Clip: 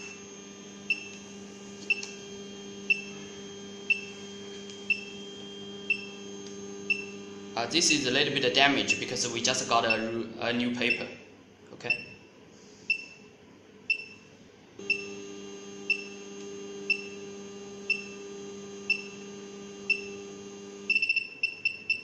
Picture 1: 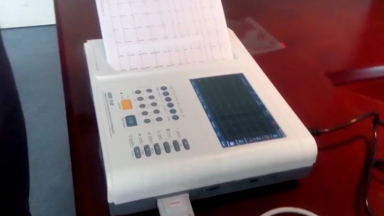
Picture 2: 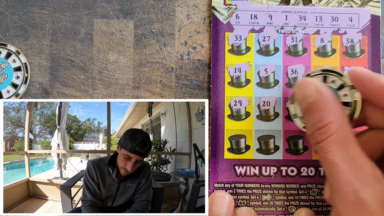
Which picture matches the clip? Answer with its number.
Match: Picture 1